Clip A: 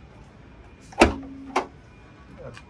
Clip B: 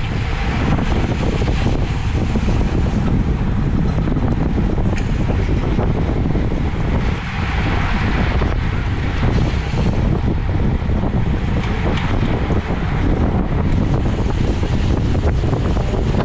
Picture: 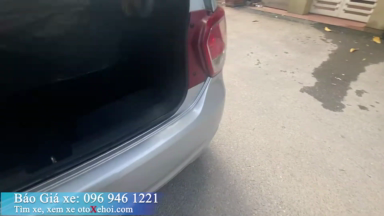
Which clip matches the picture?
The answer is A